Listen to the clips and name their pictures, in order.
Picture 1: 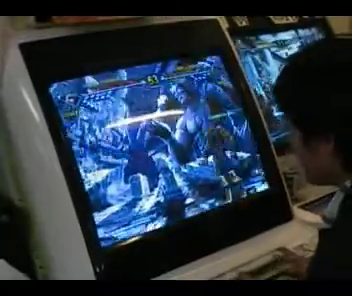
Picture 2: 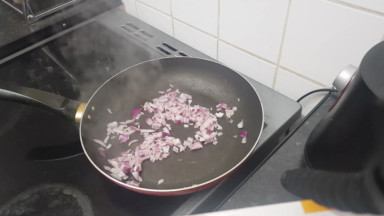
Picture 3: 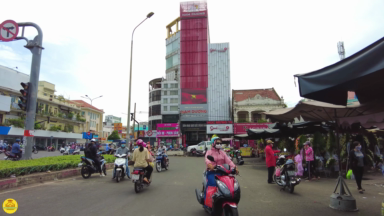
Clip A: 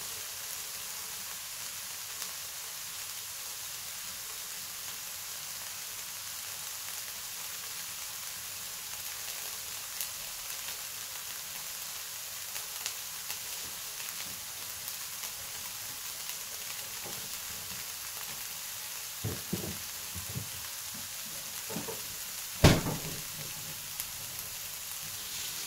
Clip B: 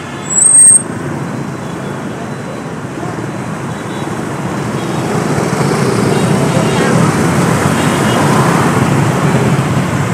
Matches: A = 2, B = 3